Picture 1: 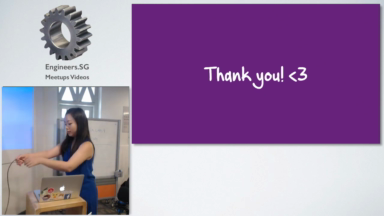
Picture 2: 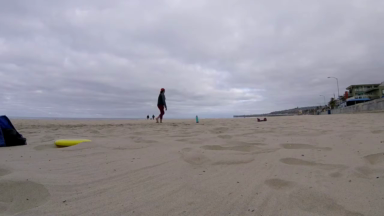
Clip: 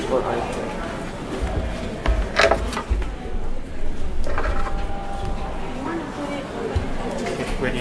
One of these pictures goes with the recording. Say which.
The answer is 1